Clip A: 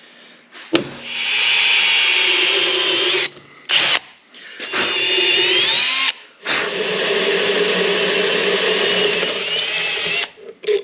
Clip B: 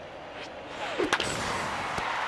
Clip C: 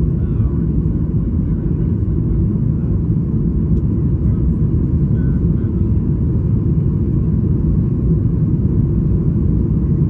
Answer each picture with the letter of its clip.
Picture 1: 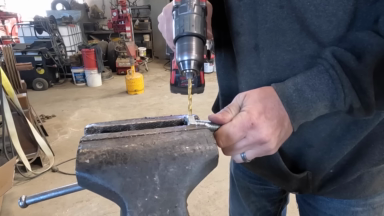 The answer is A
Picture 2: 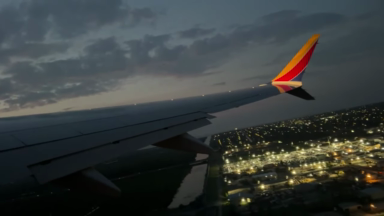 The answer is C